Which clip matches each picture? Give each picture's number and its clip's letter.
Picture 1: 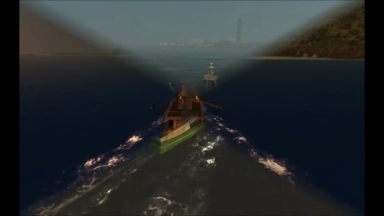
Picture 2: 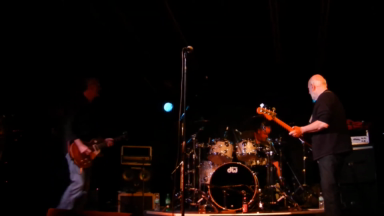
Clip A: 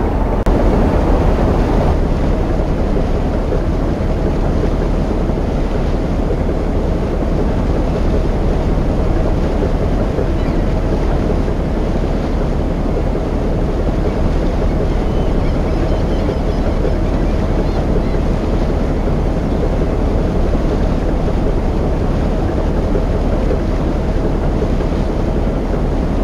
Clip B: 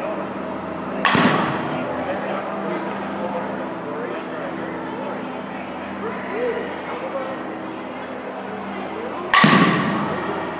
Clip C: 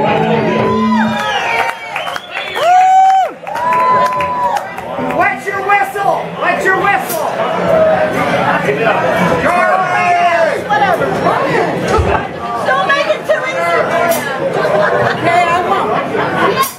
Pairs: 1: A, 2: C